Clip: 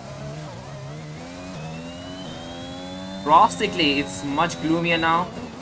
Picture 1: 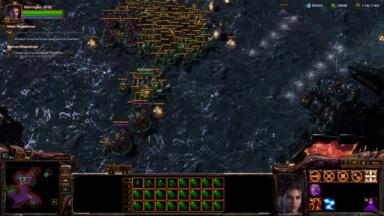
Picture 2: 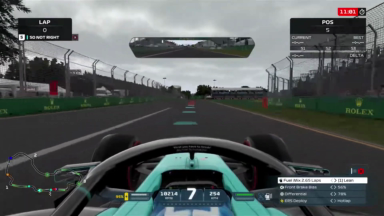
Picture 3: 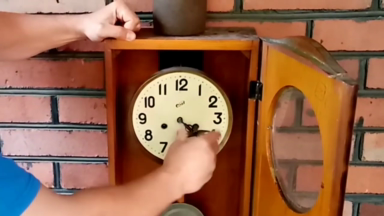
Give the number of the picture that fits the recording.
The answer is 2